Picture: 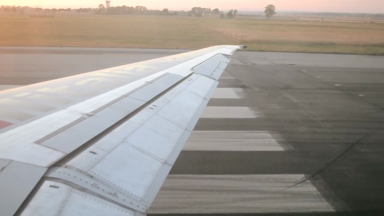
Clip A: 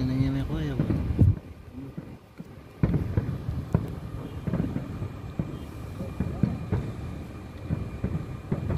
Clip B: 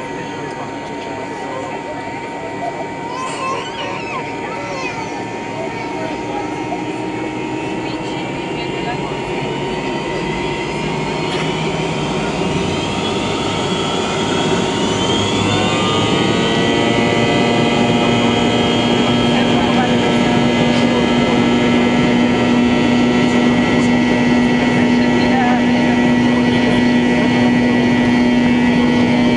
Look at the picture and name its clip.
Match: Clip B